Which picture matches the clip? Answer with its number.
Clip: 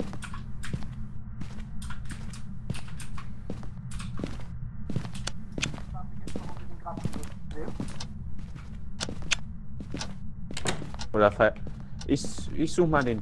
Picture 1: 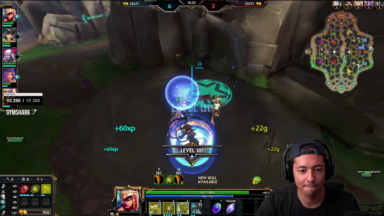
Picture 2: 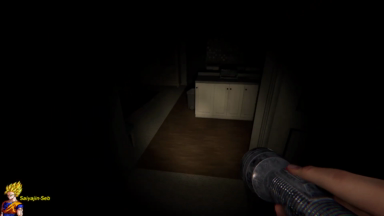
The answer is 2